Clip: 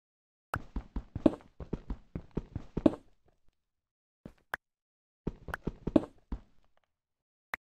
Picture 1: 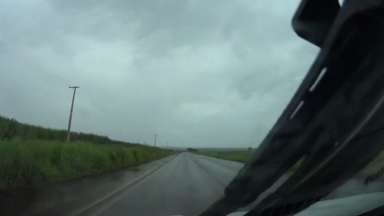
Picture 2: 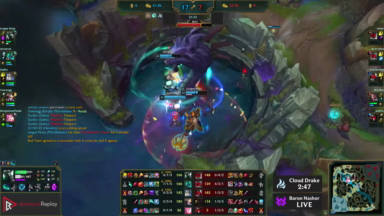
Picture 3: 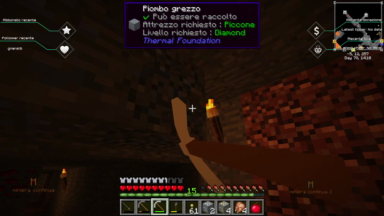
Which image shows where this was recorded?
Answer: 3